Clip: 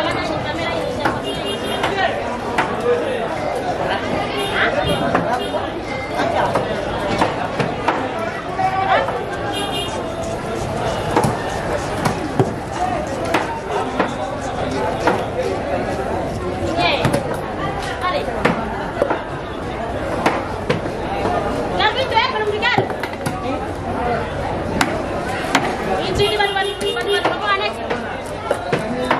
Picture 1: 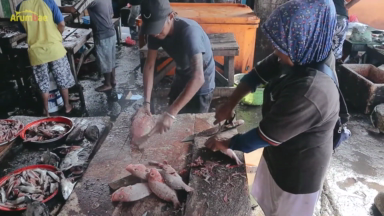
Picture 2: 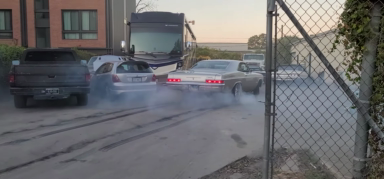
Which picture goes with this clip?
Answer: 1